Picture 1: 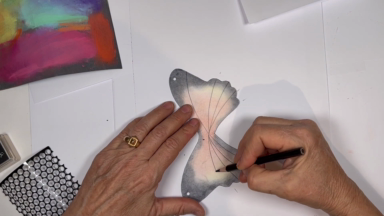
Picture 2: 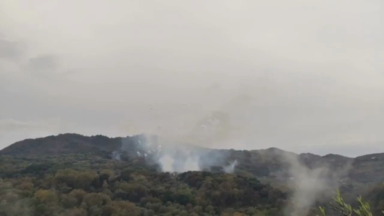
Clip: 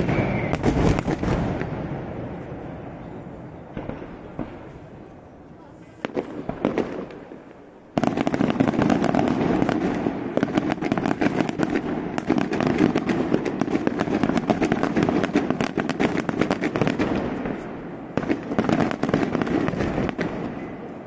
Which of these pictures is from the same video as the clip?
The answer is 2